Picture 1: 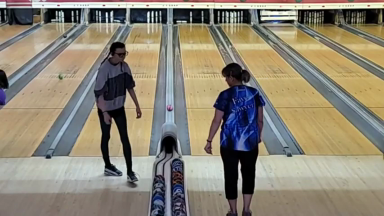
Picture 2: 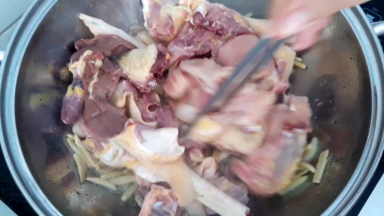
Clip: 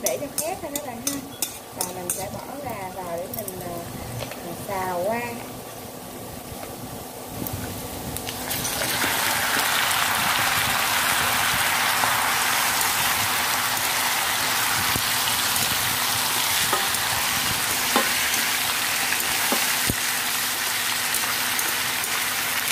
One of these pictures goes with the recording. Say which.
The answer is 2